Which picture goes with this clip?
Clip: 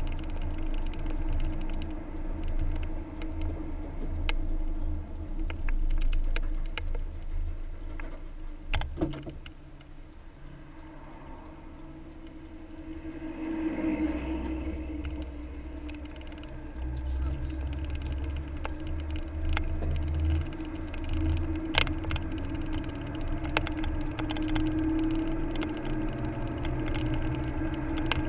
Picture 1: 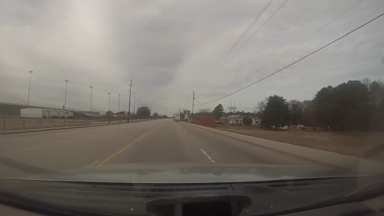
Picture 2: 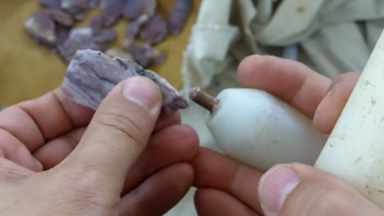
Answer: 1